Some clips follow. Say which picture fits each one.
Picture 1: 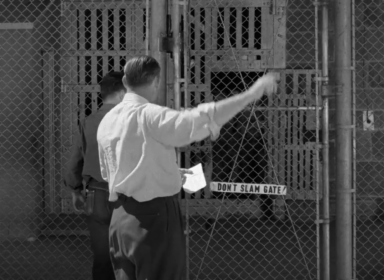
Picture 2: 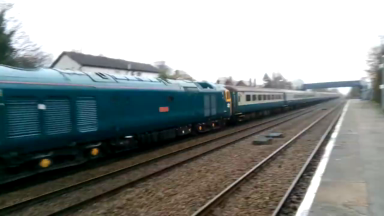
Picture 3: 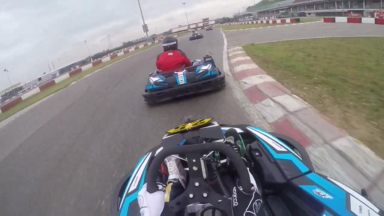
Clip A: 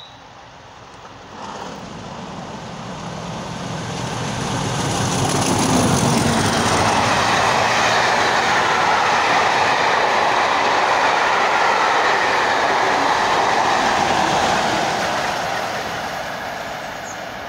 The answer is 2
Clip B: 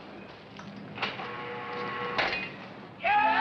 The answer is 1